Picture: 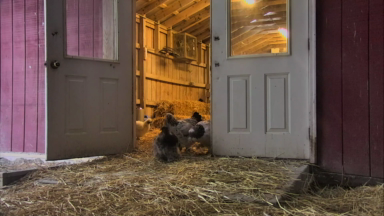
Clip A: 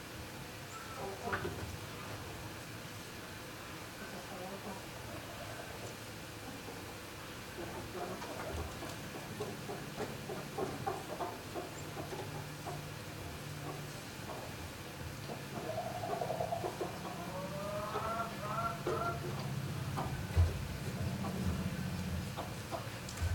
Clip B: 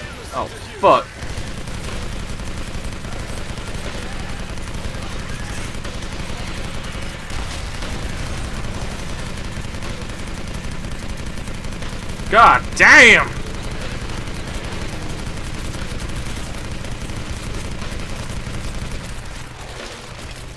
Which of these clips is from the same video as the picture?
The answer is A